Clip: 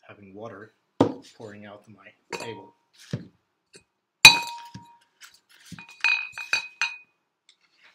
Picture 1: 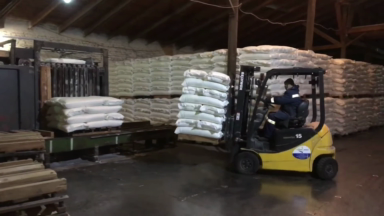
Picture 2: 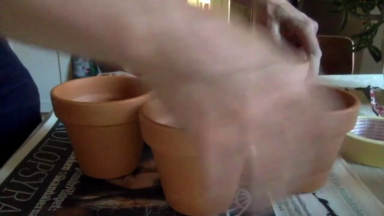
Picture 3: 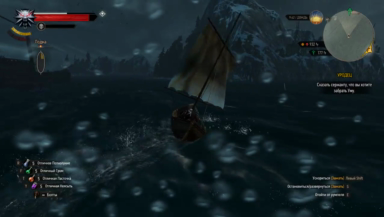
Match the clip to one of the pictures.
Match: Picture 2